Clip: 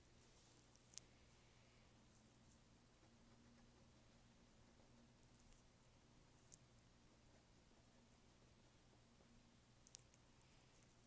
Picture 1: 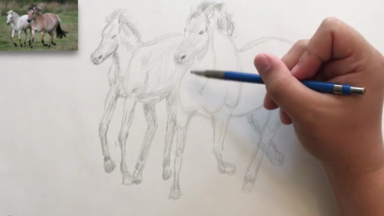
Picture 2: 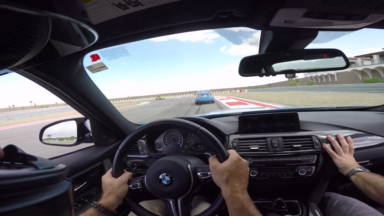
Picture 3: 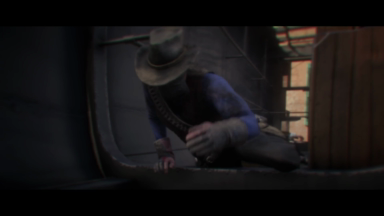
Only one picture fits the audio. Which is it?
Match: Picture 1